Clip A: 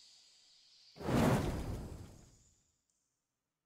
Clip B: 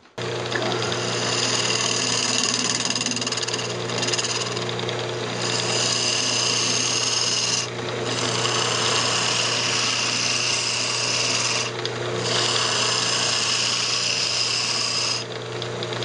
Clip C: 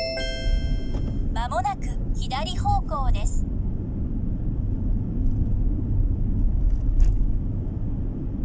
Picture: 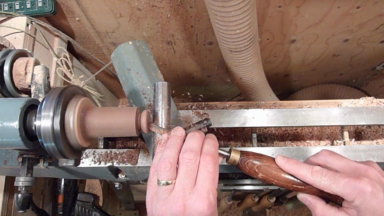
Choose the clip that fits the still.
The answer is B